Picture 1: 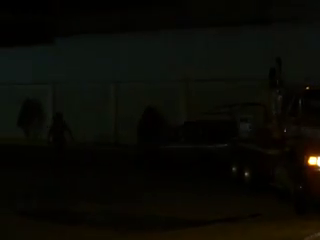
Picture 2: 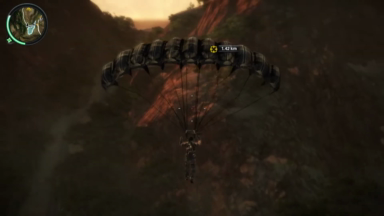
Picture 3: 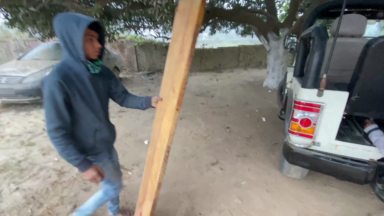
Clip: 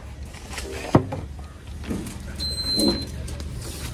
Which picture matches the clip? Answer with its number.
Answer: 3